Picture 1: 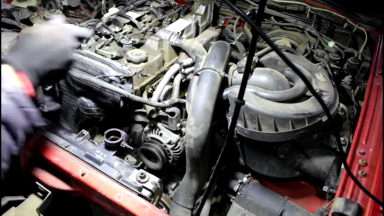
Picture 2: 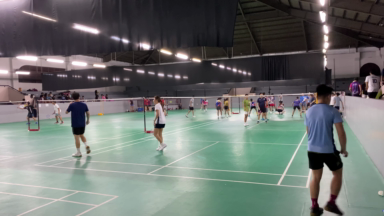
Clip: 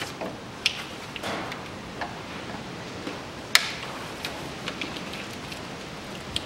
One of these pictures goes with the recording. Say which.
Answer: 1